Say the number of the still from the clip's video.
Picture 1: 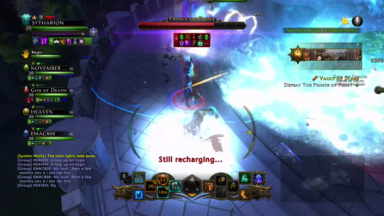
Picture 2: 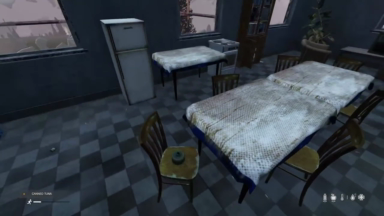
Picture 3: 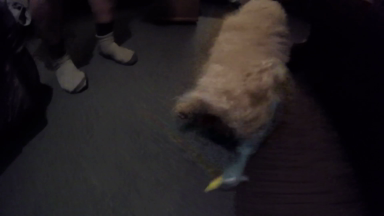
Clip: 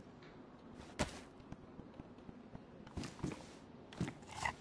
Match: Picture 2